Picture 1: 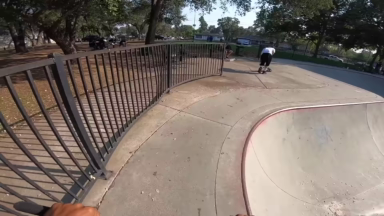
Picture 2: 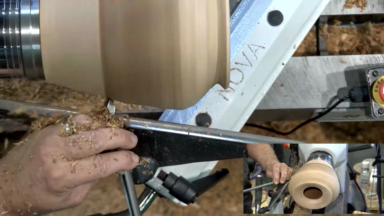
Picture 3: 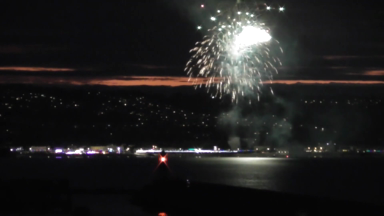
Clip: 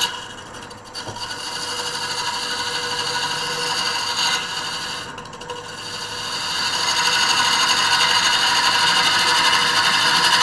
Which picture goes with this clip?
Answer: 2